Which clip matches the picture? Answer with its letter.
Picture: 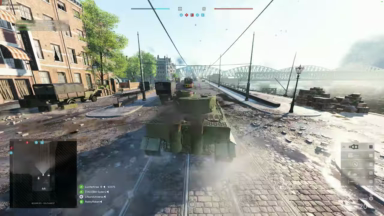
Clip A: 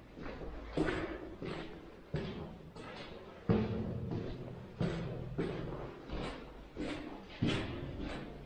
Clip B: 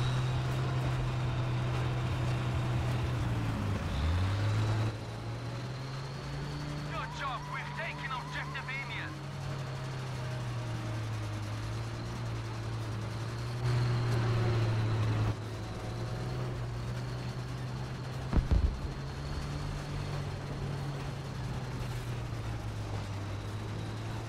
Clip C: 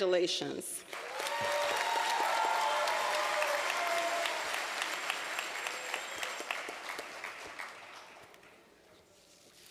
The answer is B